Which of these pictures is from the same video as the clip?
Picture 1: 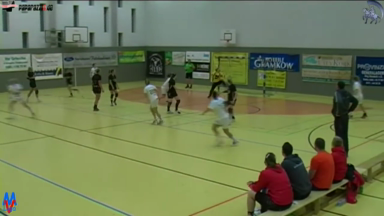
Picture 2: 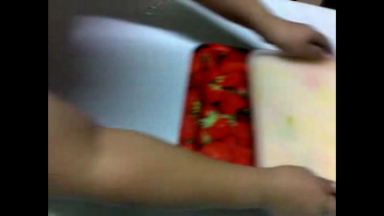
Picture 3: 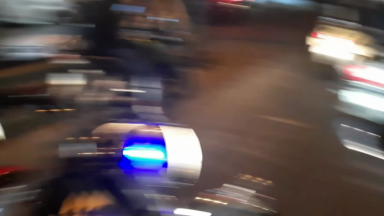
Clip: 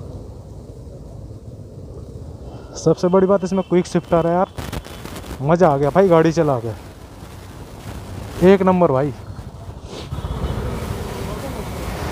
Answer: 3